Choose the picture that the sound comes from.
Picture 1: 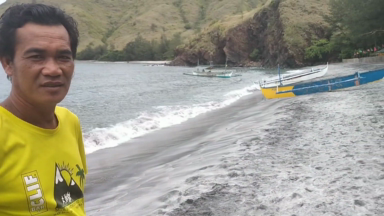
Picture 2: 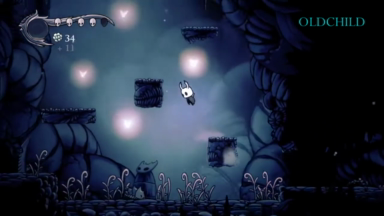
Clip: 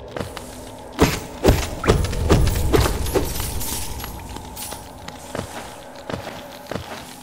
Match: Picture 2